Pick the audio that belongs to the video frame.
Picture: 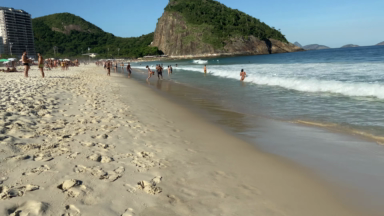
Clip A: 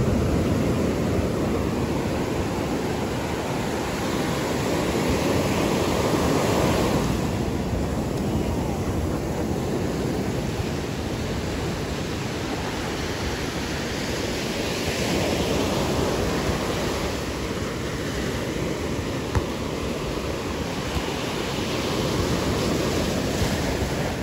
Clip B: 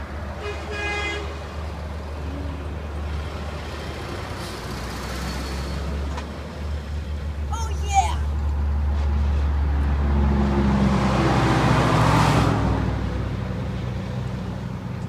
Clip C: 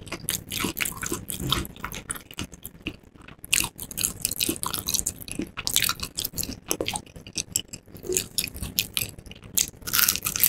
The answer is A